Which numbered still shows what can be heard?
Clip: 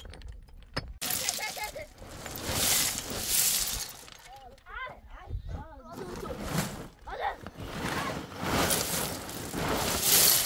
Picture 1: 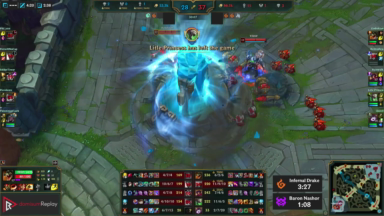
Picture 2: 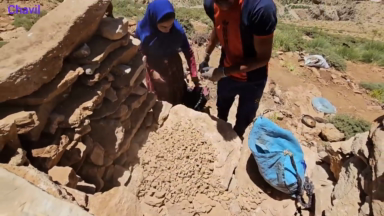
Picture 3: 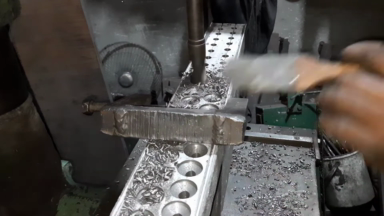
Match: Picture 2